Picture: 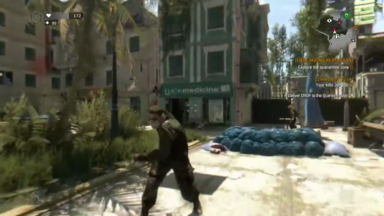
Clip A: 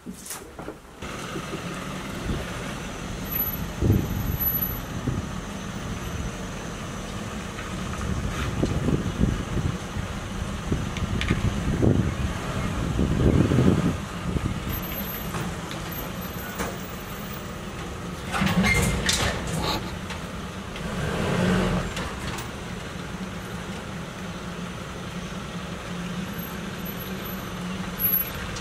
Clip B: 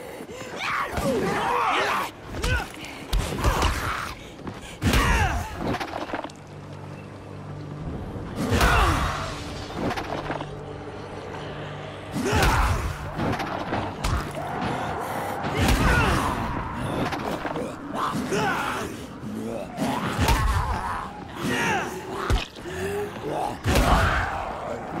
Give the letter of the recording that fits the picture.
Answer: B